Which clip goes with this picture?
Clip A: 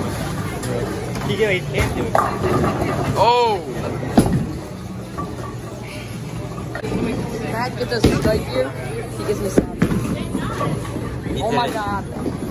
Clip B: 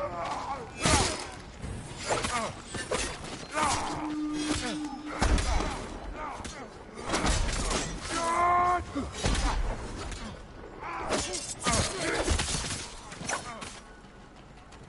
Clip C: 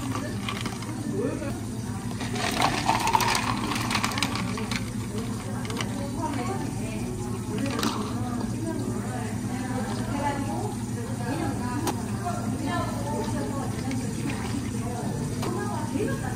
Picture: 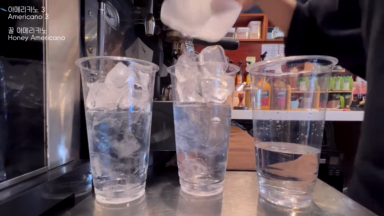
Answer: C